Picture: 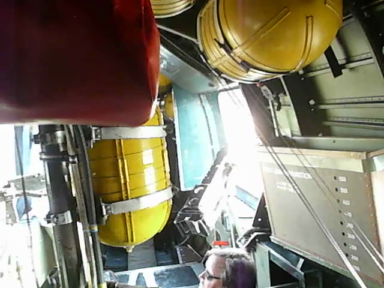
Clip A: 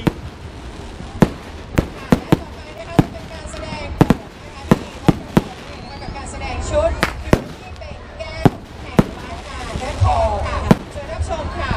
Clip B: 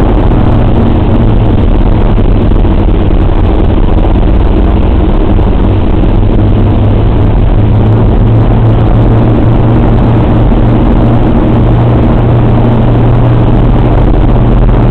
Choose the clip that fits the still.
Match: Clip B